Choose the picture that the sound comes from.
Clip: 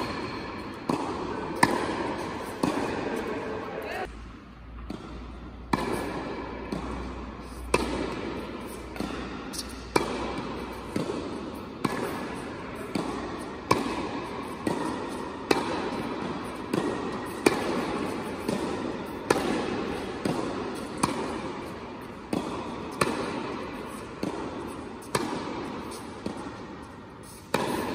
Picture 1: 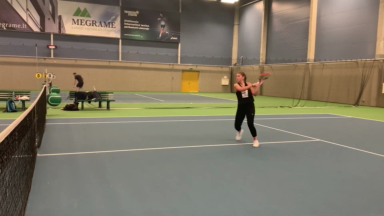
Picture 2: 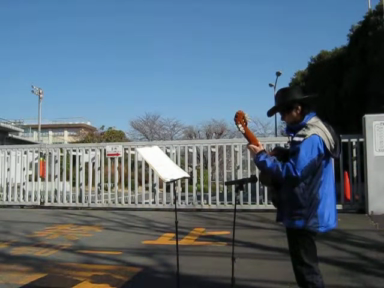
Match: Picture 1